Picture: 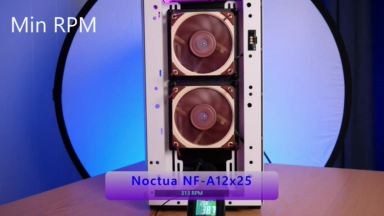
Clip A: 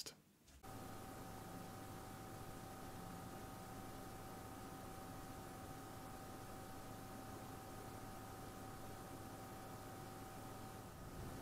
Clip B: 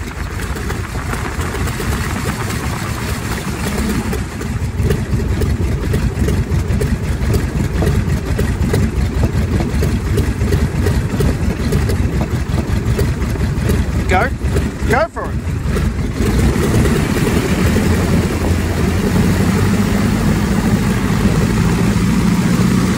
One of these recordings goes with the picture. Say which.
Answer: A